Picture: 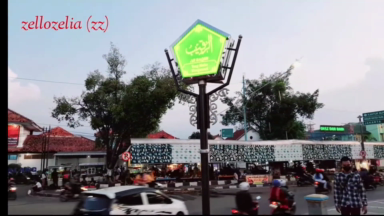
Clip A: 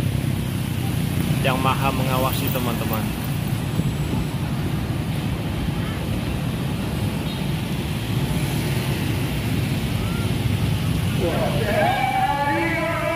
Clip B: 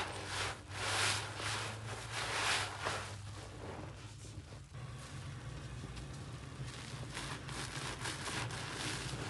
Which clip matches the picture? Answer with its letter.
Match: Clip A